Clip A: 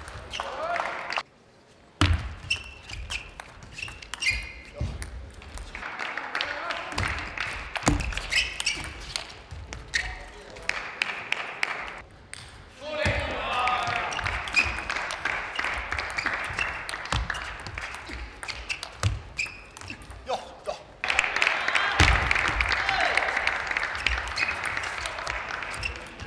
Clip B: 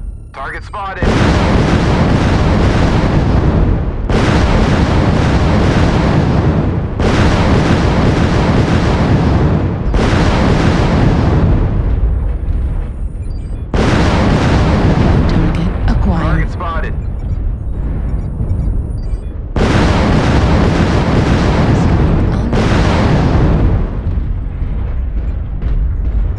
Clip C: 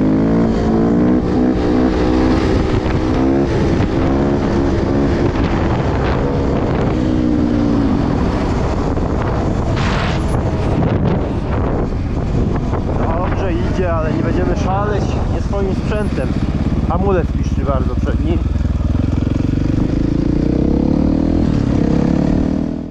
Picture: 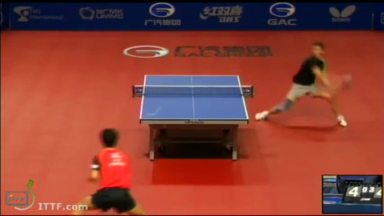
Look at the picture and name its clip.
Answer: A